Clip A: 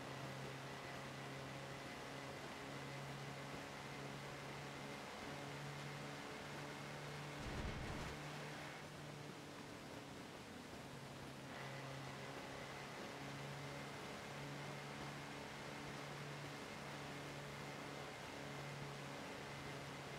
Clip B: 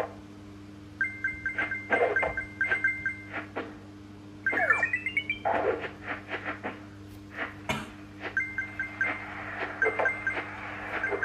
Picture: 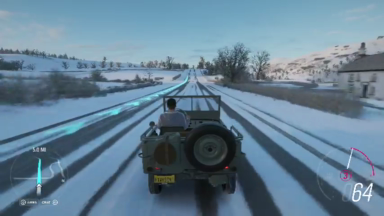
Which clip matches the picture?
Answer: A